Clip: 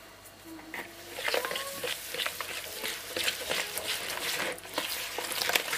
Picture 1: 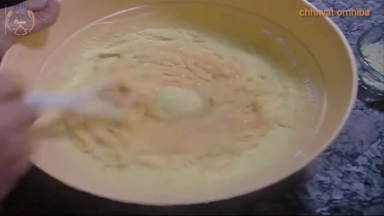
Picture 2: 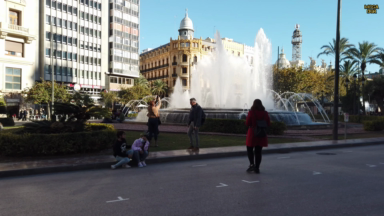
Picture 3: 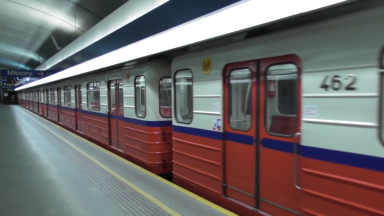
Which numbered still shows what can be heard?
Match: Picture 1